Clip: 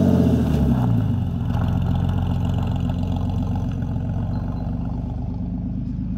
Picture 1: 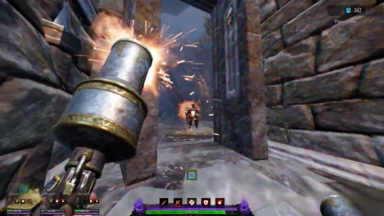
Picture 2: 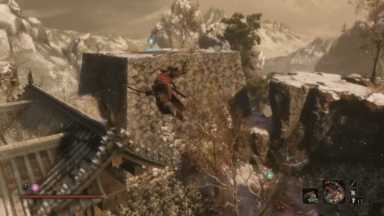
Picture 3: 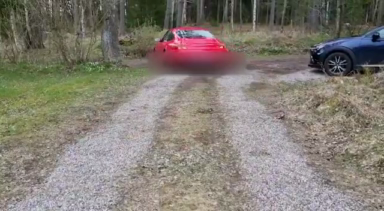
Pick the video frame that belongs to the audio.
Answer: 3